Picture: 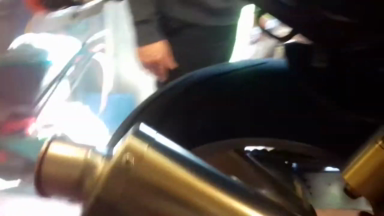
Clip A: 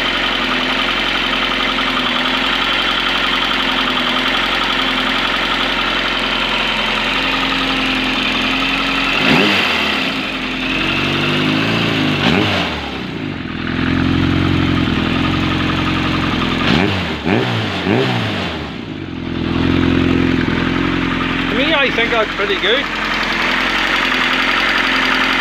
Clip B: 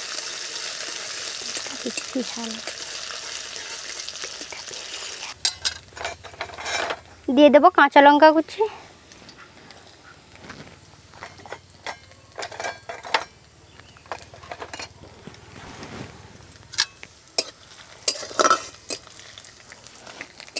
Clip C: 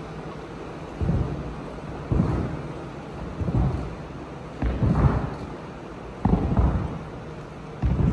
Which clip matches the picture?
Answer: A